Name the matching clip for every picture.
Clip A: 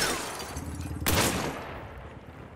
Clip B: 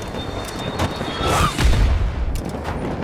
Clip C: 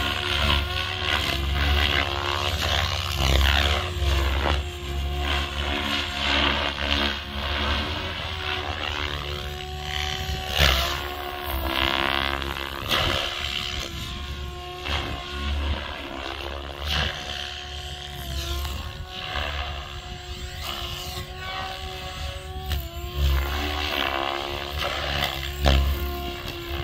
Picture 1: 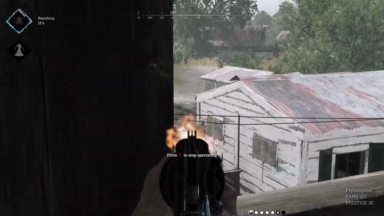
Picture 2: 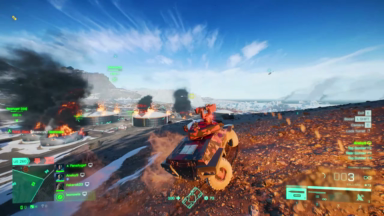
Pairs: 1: A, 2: B